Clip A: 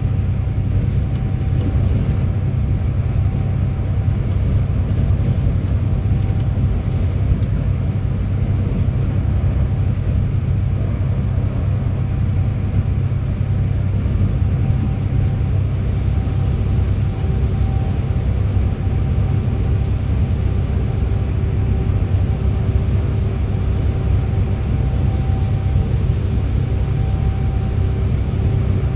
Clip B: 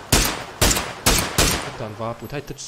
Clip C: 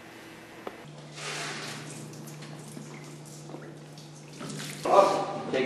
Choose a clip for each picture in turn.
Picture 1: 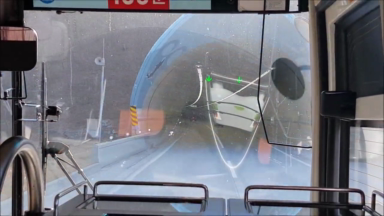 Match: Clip A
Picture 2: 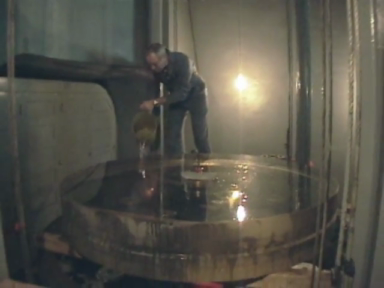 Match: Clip C